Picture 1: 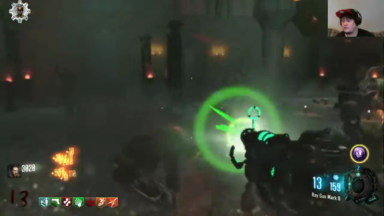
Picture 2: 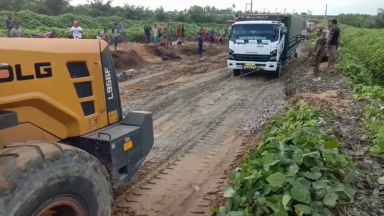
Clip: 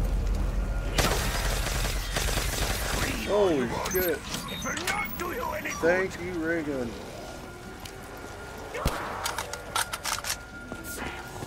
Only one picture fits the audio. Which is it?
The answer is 1